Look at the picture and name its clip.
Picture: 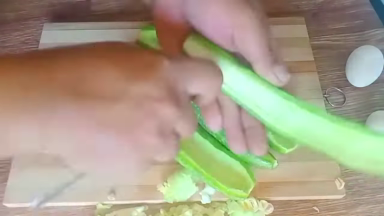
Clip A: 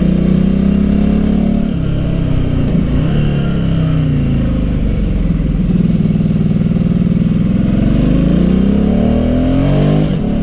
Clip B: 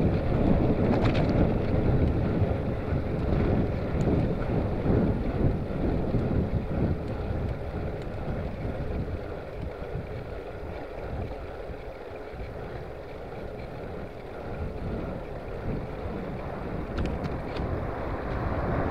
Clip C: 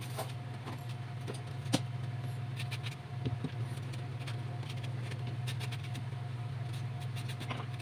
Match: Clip C